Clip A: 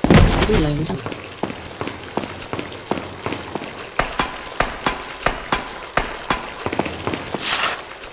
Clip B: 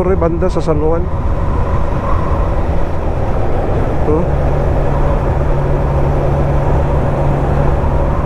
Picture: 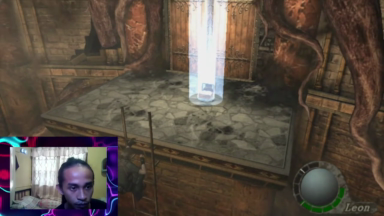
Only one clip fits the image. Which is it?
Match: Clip A